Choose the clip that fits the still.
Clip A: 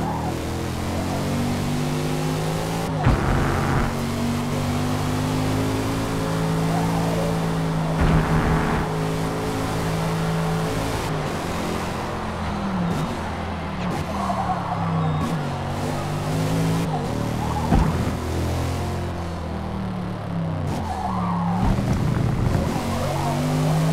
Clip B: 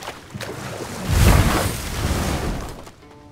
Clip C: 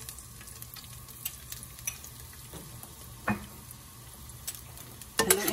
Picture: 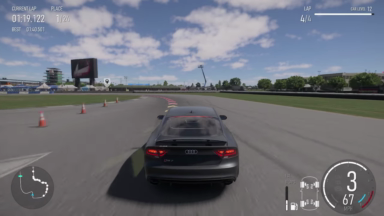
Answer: A